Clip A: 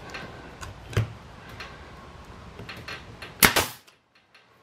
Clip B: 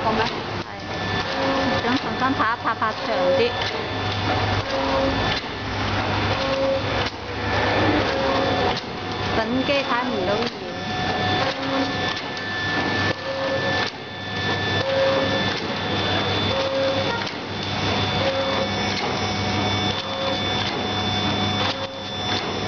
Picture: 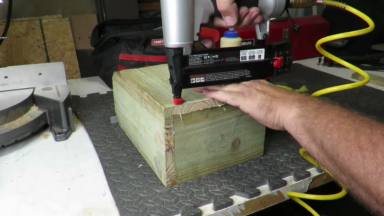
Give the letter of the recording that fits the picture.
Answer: A